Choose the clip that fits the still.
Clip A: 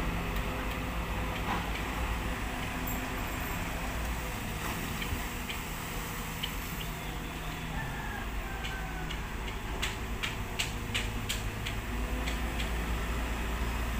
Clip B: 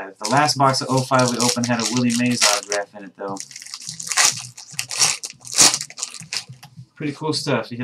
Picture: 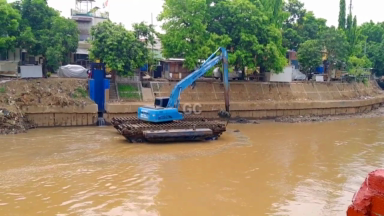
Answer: A